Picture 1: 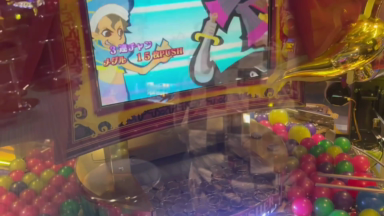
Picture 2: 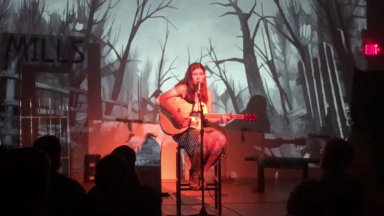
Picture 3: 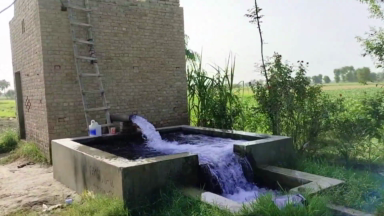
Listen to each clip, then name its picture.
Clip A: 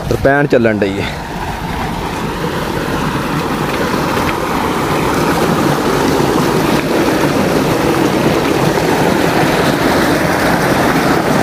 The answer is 3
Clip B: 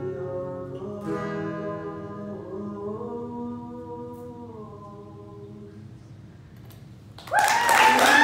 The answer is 2